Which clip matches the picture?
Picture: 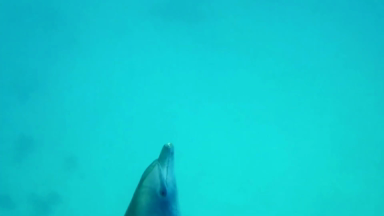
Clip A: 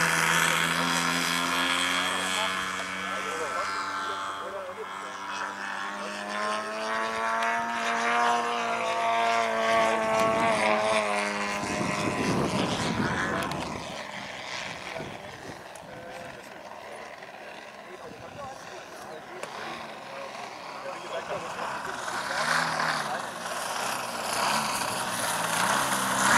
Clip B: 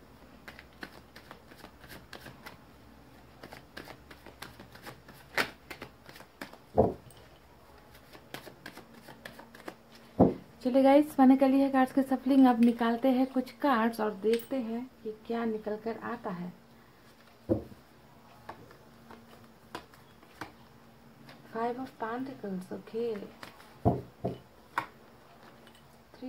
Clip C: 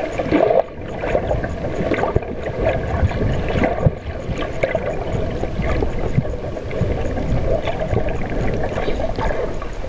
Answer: C